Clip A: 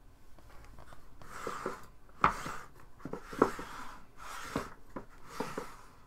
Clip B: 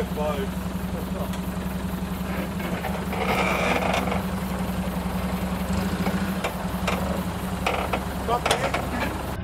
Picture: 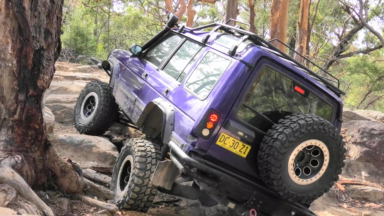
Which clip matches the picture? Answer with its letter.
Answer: B